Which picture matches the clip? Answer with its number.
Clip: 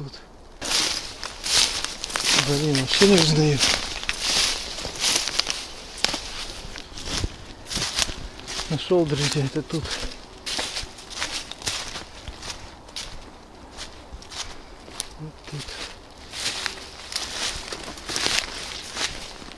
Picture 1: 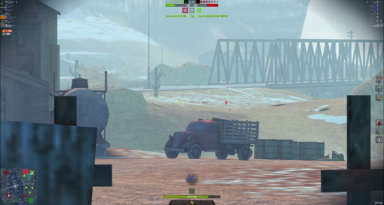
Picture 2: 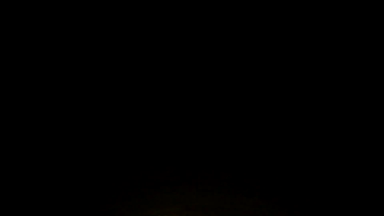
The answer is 2